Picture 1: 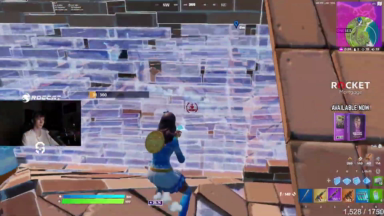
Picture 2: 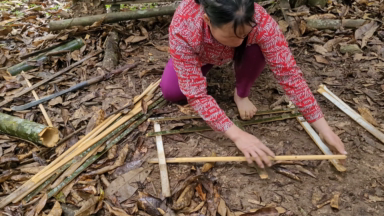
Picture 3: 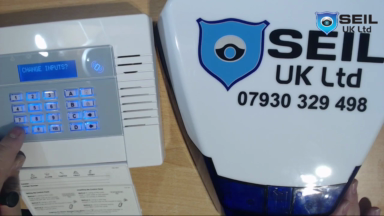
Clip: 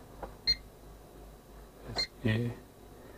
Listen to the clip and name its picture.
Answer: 3